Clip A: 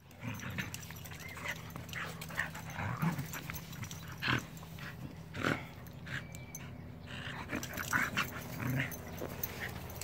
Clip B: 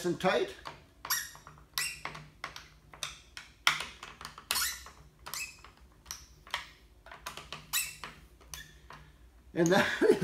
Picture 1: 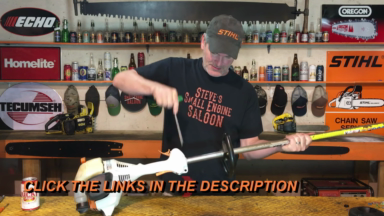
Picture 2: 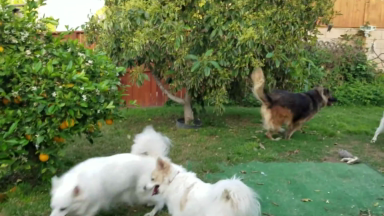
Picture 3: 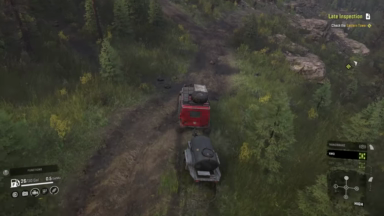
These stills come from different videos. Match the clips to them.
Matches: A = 2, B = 1